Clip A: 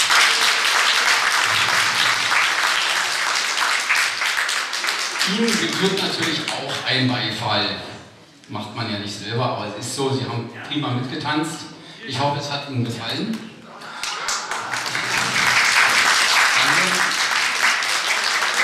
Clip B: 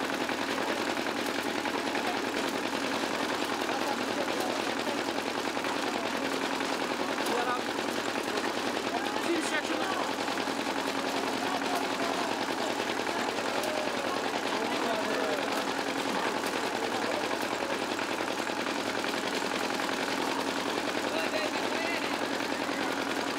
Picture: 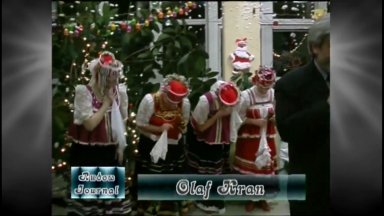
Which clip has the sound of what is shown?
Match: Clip A